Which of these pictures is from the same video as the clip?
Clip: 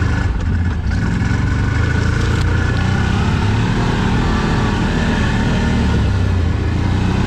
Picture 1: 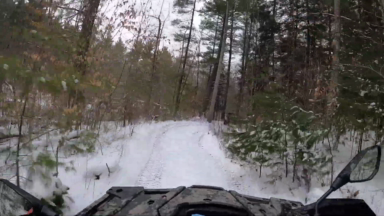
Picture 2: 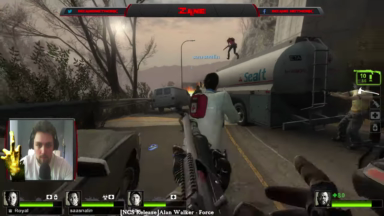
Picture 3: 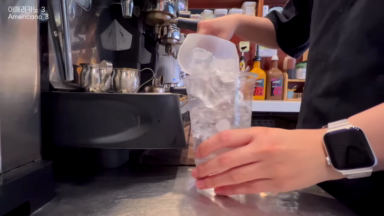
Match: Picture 1